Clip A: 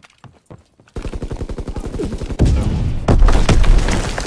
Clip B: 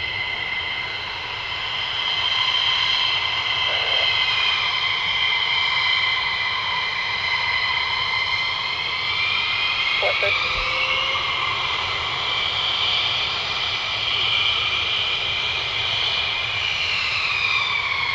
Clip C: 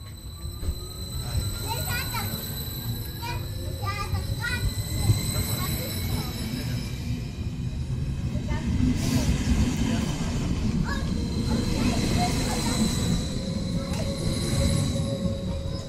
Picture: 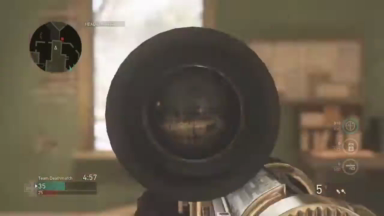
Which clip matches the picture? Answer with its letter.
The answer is A